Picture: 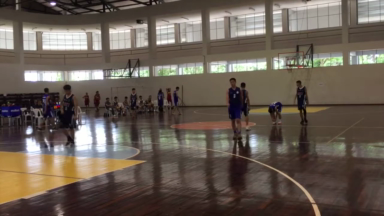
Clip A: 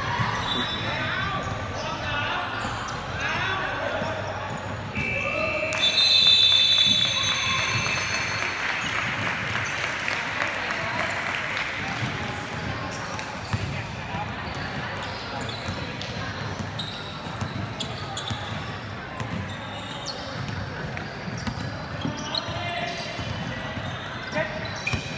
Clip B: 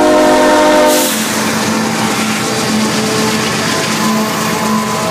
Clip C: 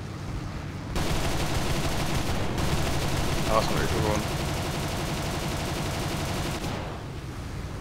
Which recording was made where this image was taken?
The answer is A